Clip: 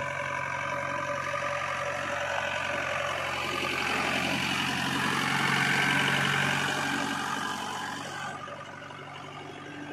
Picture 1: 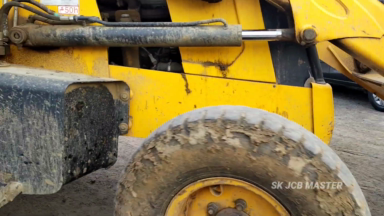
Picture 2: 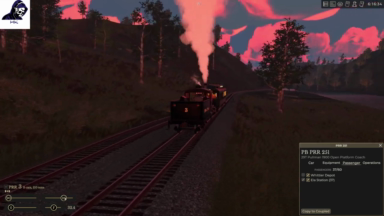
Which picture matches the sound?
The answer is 1